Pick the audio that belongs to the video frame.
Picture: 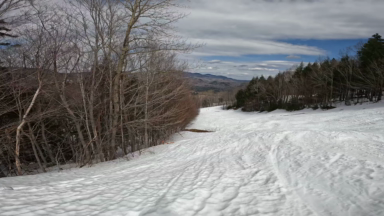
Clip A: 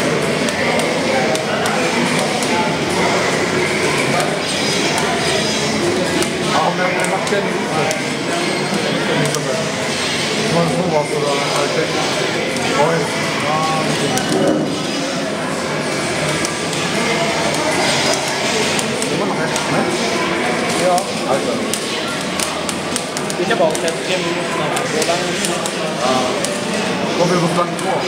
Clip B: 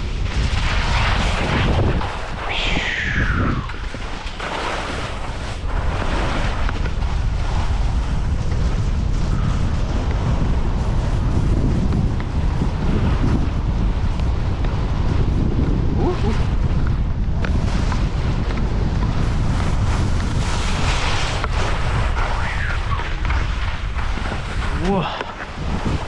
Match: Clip B